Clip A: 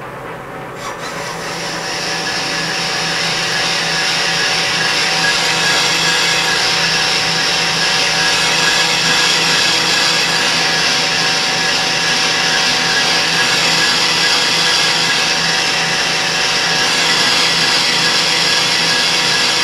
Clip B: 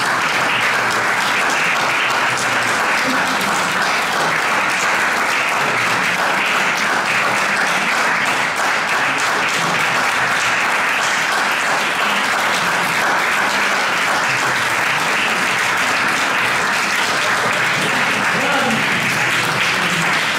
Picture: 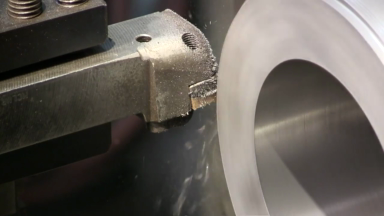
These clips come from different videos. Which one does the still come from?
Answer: A